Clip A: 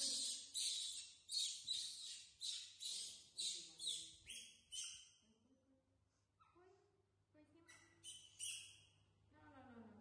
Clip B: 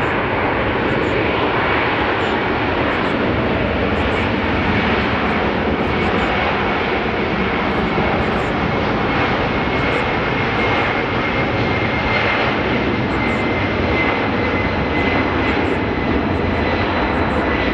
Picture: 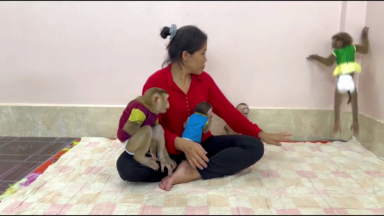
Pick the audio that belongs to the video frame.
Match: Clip A